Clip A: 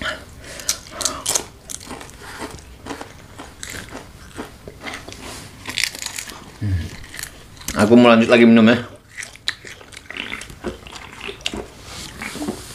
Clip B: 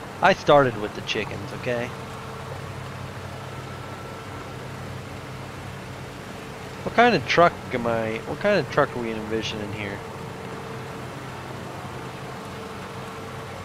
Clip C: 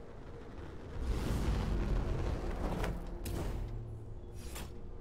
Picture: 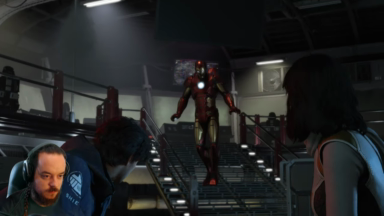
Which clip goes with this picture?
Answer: C